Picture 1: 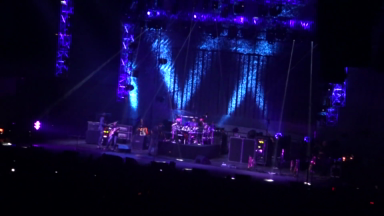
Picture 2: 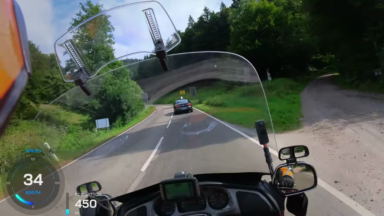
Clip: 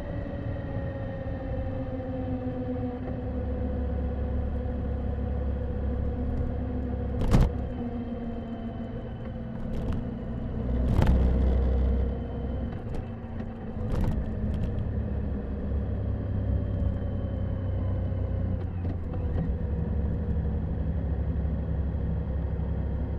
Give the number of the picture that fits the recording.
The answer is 2